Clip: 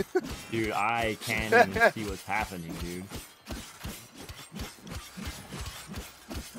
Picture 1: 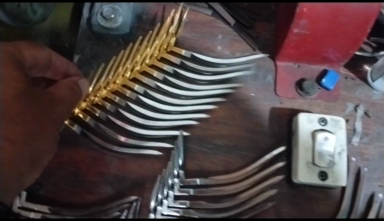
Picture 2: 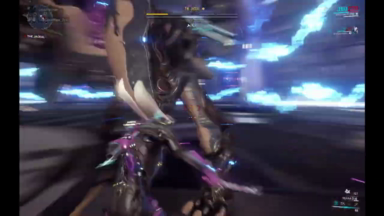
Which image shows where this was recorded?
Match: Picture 2